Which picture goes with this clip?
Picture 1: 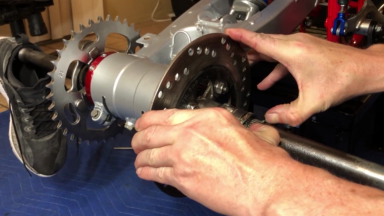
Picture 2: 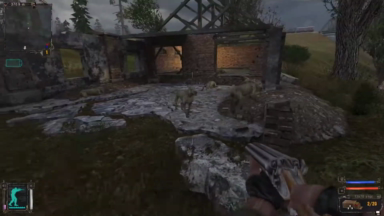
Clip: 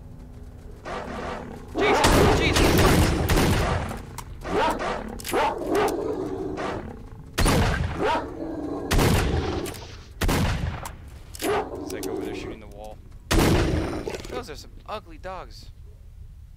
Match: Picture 2